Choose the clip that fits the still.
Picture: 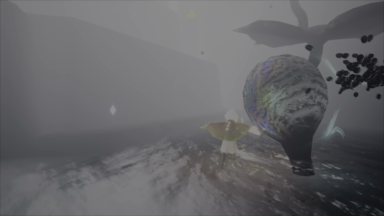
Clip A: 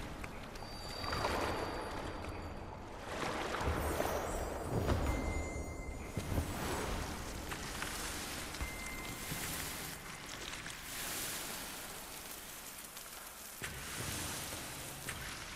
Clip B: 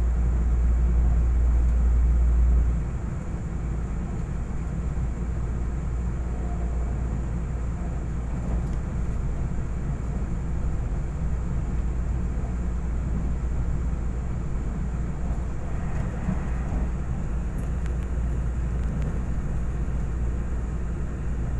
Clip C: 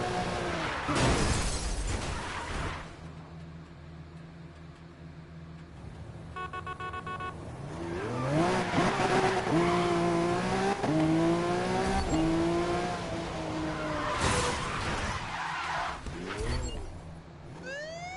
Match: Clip A